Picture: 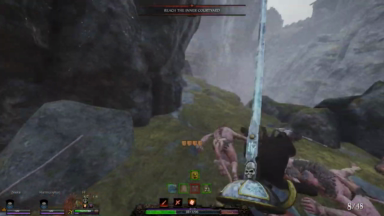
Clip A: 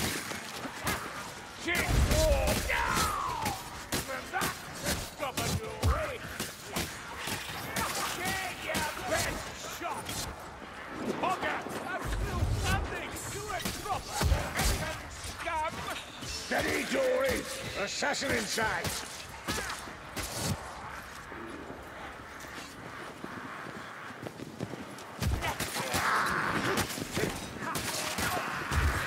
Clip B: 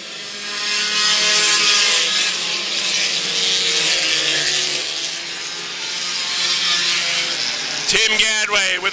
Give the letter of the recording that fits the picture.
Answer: A